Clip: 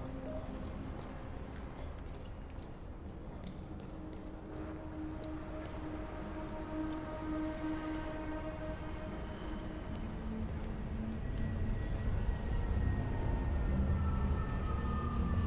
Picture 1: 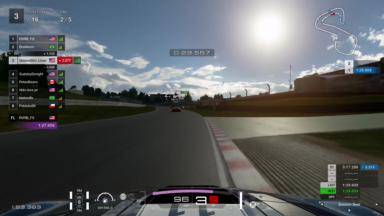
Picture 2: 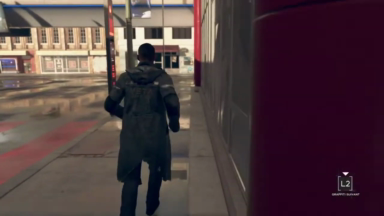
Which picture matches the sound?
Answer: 2